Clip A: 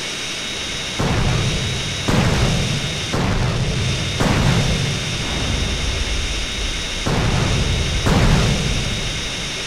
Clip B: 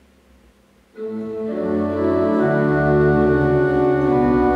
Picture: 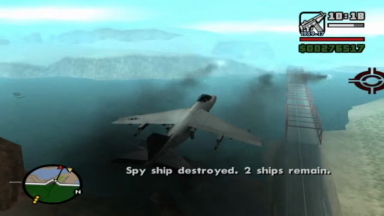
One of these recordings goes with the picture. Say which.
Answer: A